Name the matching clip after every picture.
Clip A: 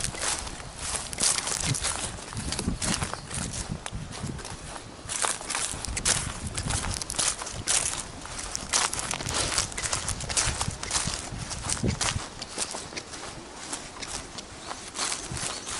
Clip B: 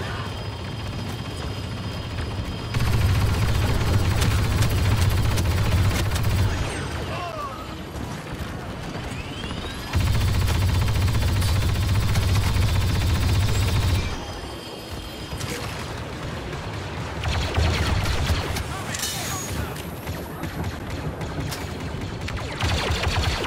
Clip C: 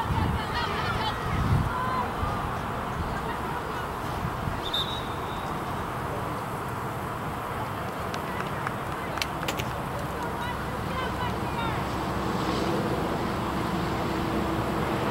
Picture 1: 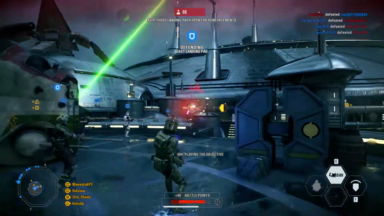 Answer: B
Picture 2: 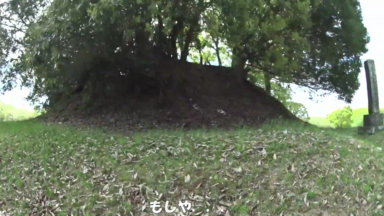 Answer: A